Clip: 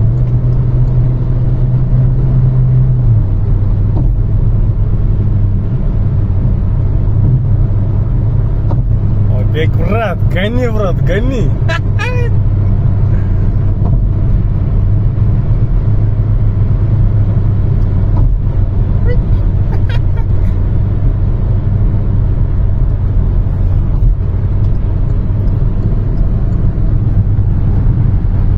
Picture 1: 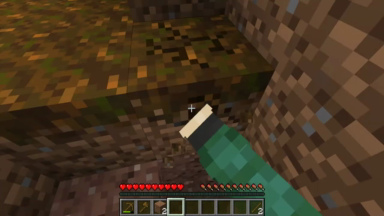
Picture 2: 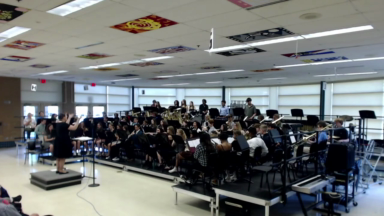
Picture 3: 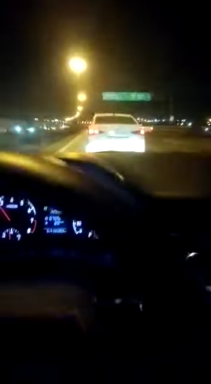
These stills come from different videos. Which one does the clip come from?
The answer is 3